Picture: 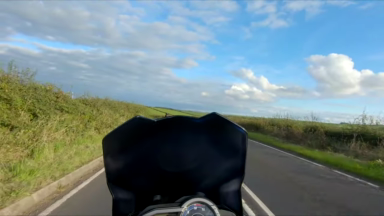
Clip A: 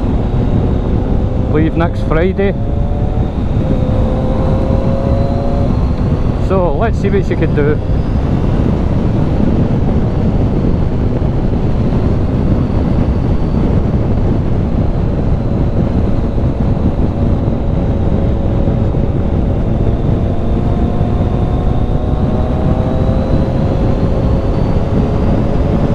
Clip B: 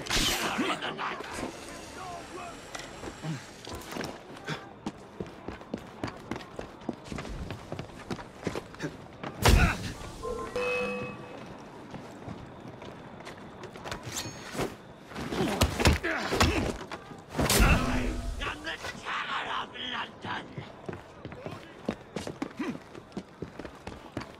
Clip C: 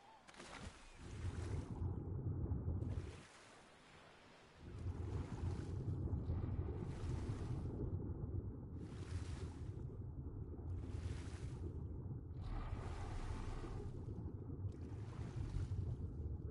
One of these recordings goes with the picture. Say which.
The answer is A